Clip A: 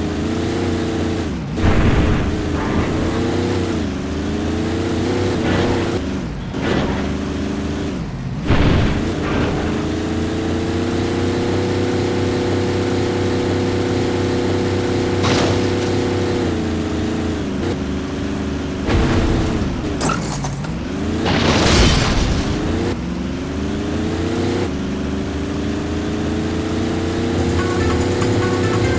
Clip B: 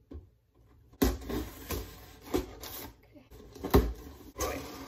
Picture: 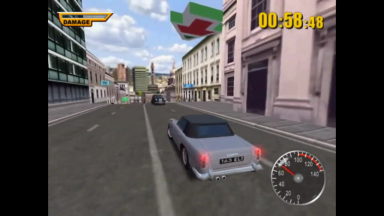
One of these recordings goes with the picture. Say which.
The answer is A